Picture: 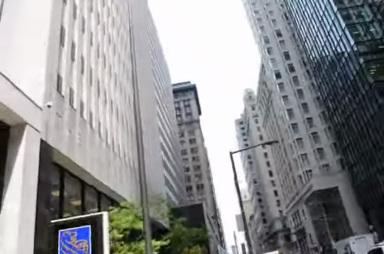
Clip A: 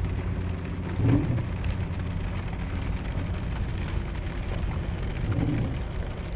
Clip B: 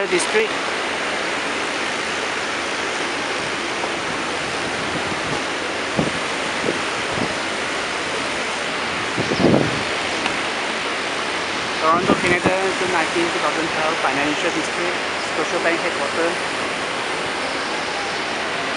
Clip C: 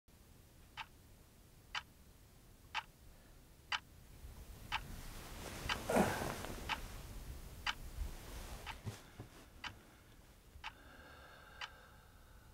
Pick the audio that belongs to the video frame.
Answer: B